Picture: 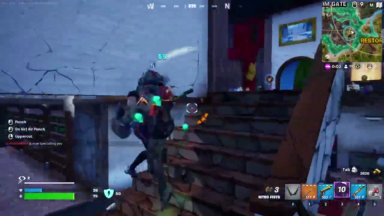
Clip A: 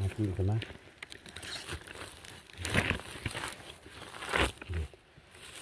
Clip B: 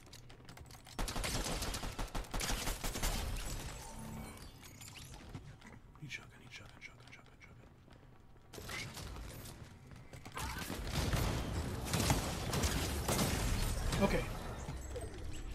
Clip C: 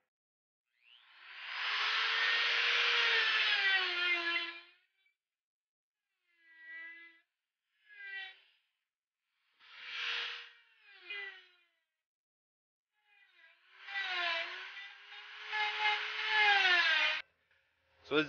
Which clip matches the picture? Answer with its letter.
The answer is B